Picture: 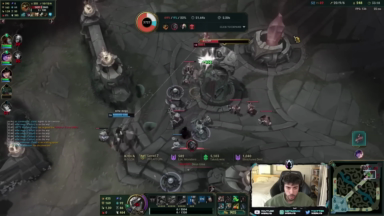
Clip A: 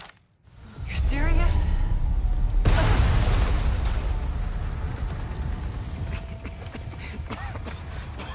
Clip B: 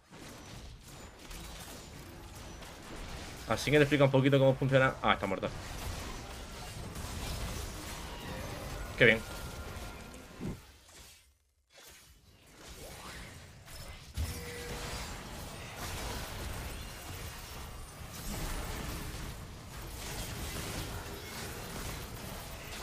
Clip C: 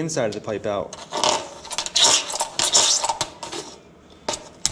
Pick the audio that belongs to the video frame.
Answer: B